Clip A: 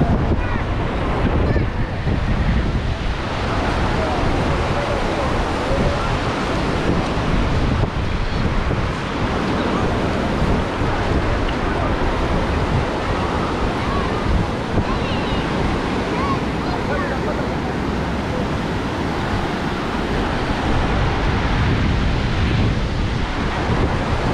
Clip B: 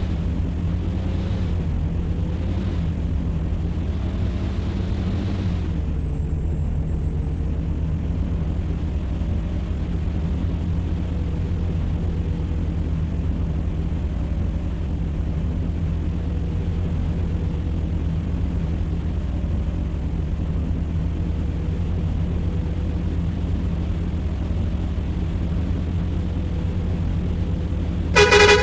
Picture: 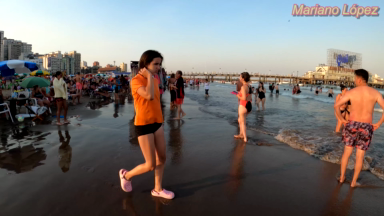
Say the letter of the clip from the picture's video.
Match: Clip A